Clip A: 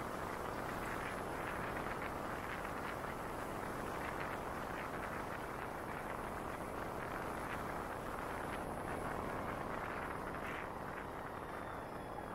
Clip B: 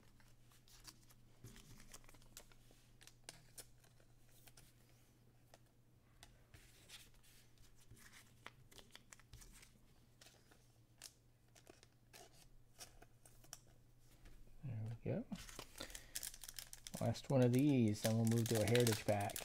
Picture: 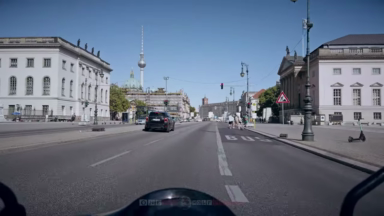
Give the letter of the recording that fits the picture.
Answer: A